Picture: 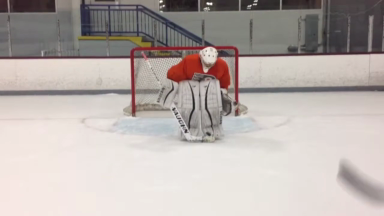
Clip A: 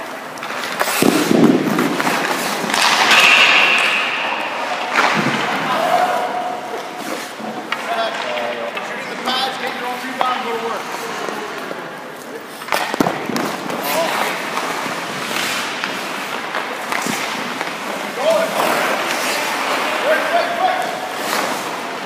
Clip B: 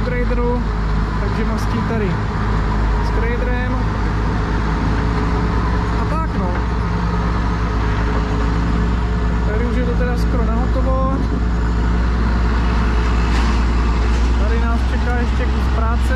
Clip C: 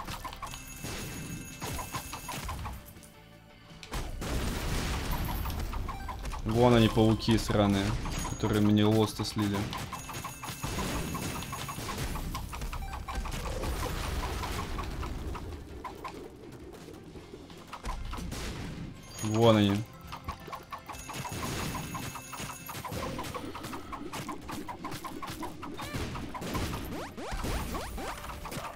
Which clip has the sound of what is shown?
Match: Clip A